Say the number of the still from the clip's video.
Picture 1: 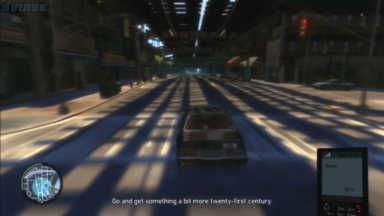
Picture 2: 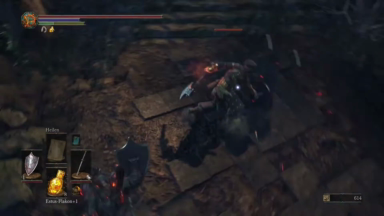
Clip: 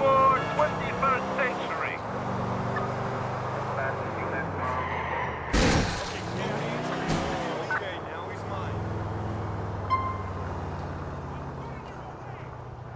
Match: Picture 1